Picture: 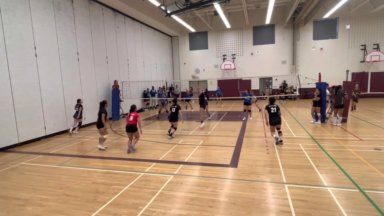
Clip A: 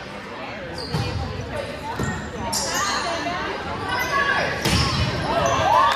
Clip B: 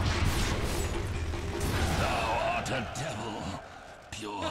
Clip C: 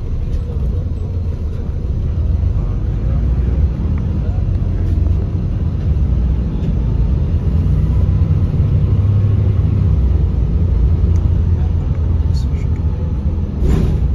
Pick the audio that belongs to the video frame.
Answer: A